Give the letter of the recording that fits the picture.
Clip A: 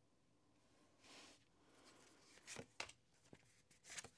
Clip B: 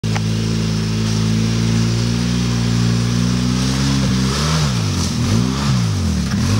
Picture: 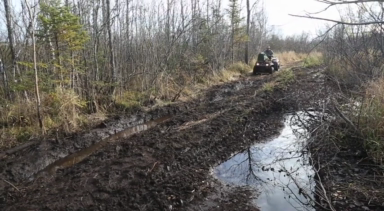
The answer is B